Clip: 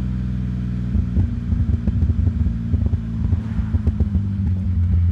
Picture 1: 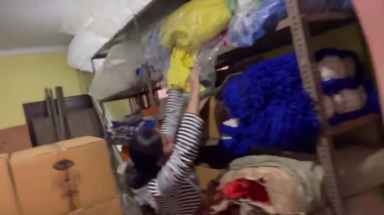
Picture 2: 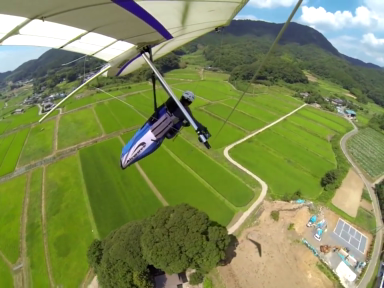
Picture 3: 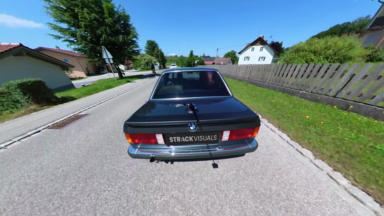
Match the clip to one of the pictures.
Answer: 3